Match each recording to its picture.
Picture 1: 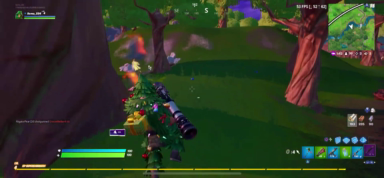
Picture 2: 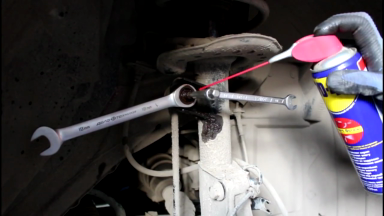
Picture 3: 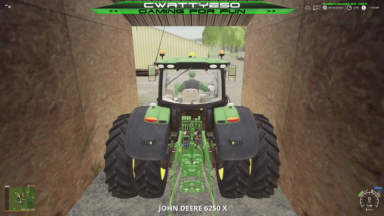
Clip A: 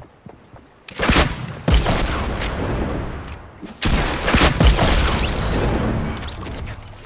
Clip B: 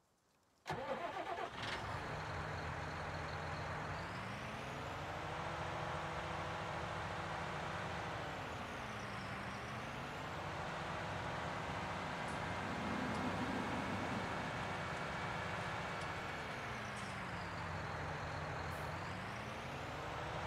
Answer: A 1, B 3